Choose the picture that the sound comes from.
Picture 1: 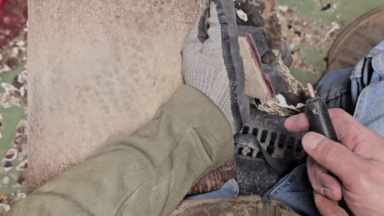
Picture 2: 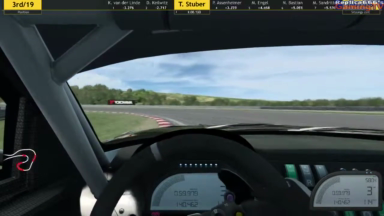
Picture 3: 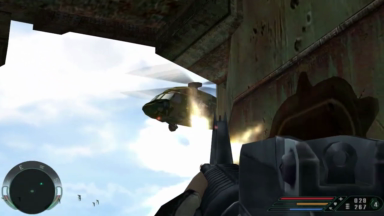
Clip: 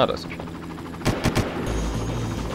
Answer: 3